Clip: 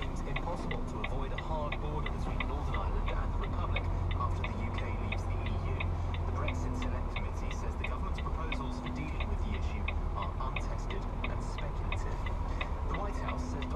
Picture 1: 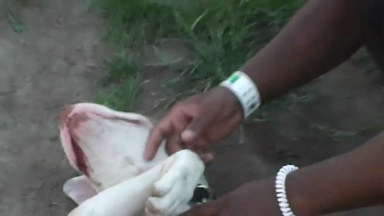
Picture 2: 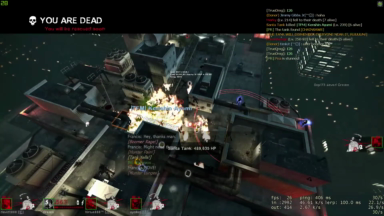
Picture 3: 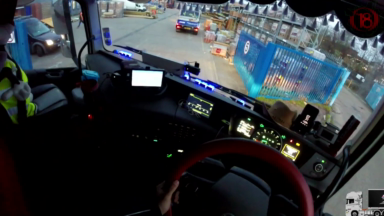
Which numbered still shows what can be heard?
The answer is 3